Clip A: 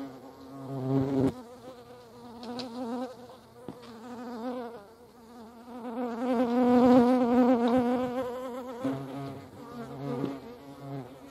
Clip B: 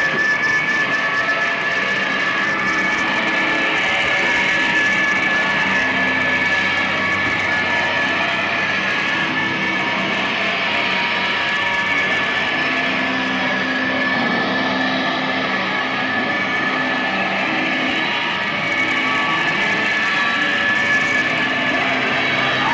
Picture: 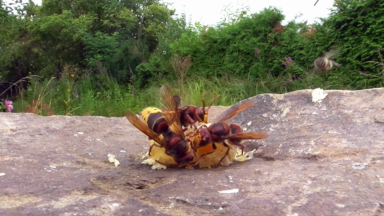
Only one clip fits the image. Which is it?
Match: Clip A